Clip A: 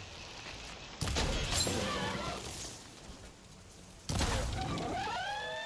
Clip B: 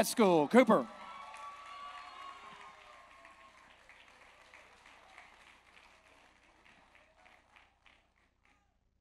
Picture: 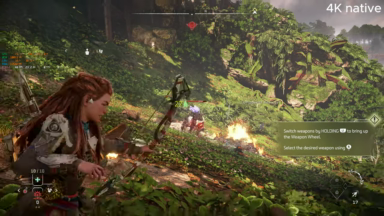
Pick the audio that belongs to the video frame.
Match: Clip A